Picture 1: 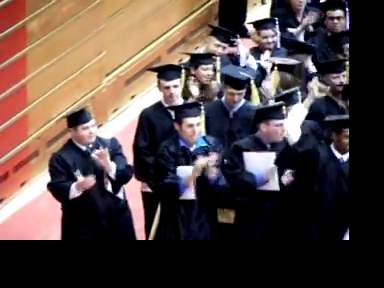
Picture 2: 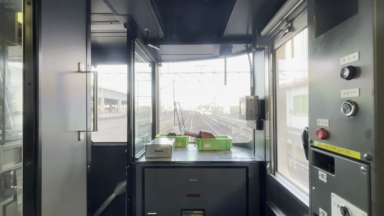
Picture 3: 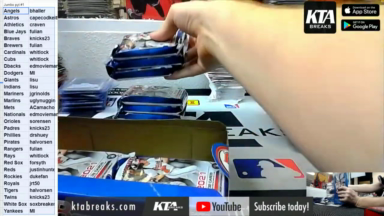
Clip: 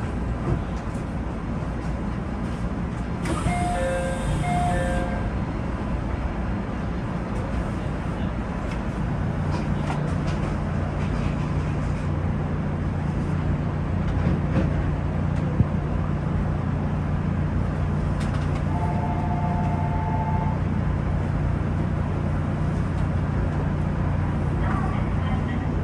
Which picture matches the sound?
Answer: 2